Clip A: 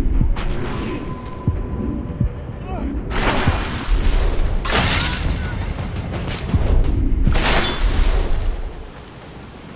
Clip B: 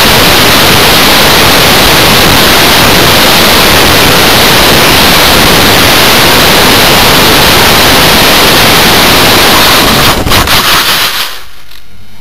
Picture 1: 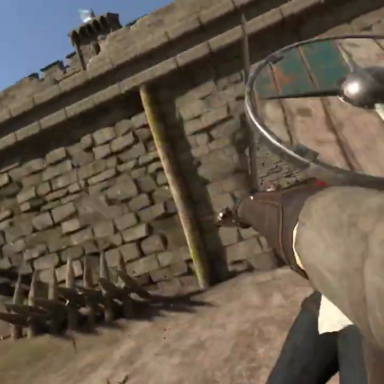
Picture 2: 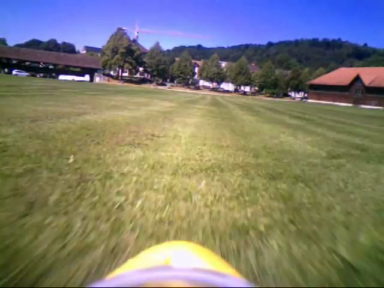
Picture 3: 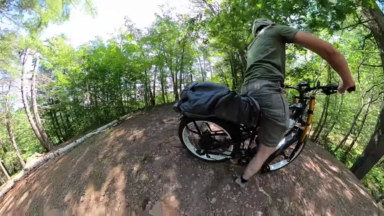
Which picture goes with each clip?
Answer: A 1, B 2